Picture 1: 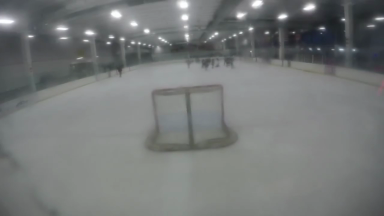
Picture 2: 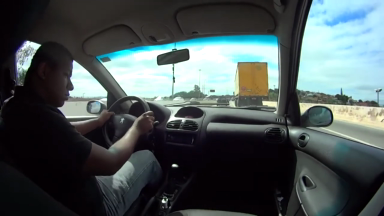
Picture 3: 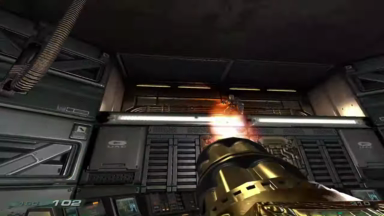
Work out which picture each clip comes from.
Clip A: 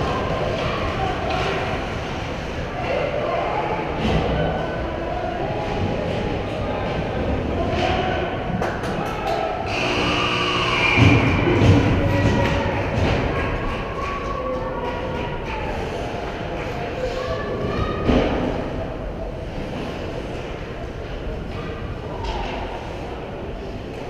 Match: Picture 1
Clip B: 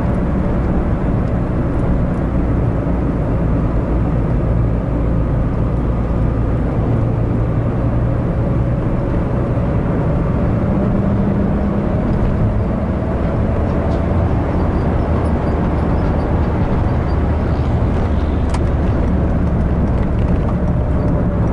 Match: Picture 2